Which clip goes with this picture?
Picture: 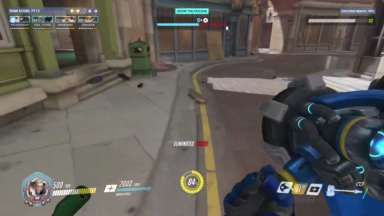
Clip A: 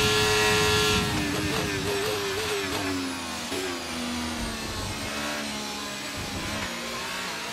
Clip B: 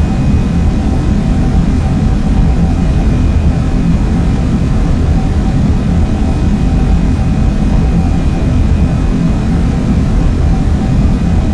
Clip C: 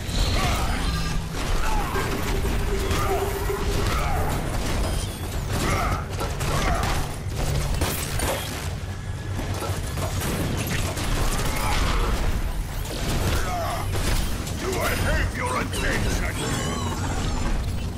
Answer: C